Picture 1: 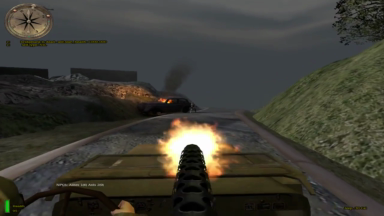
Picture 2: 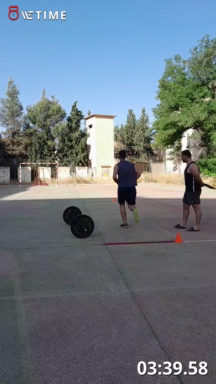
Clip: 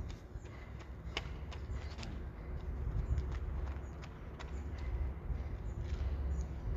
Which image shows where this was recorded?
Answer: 2